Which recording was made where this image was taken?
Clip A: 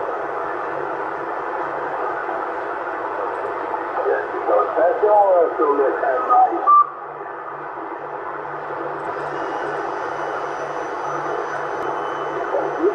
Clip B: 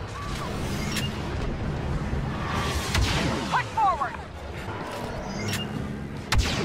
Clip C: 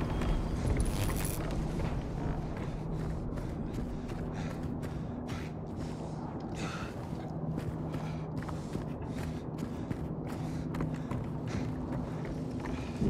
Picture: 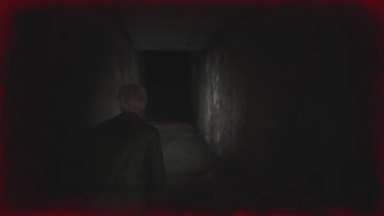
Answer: C